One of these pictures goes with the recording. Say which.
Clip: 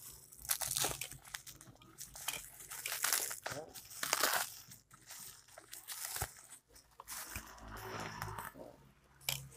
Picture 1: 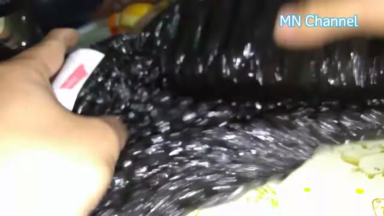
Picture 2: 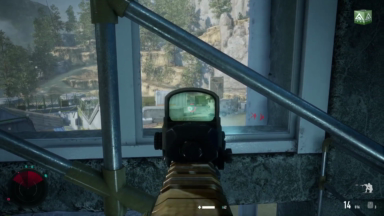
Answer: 1